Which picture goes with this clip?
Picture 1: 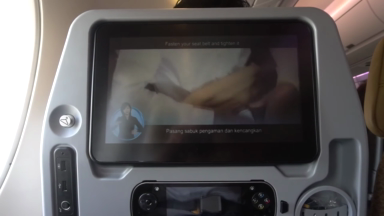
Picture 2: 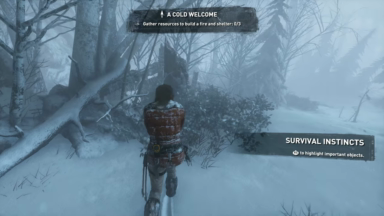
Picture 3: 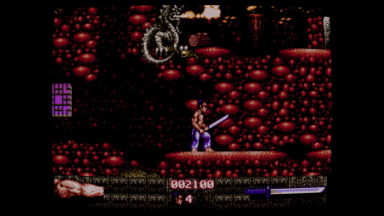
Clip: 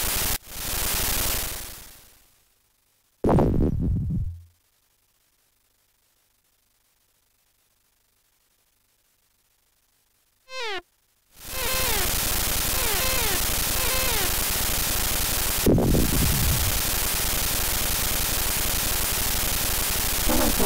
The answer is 3